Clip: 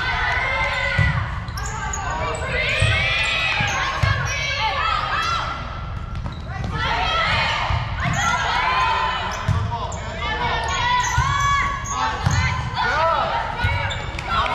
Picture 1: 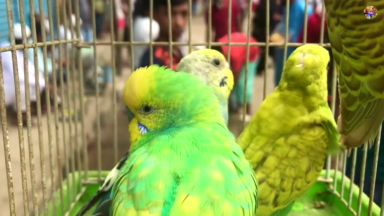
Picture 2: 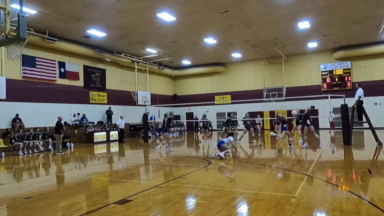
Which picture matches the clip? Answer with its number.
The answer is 2